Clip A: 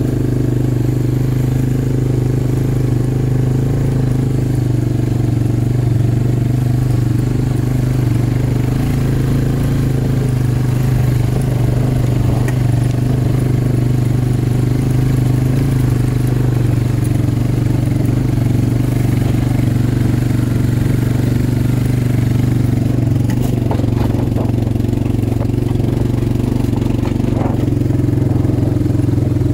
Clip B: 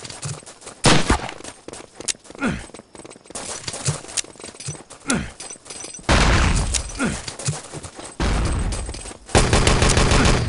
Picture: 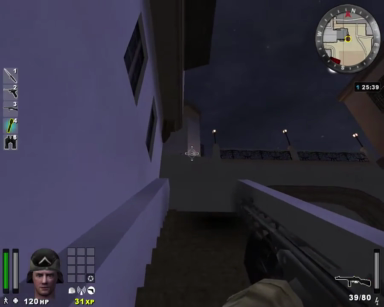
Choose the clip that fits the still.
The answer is B